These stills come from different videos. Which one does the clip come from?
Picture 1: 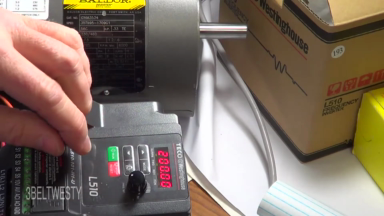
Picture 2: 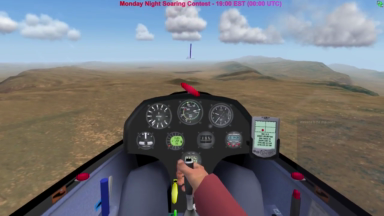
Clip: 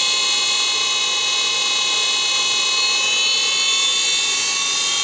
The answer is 1